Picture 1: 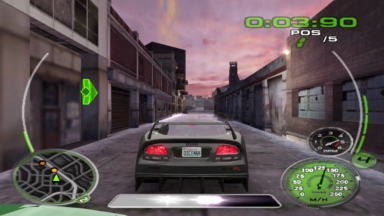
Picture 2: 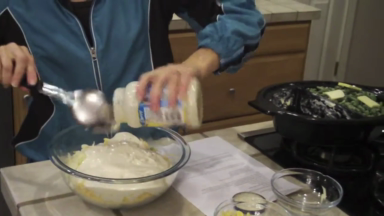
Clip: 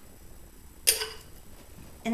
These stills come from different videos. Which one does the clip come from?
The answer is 2